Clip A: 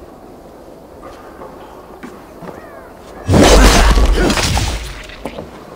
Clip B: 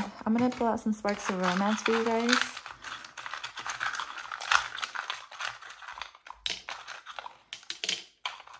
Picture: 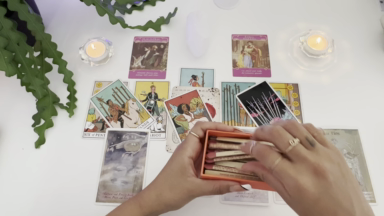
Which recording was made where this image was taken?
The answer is B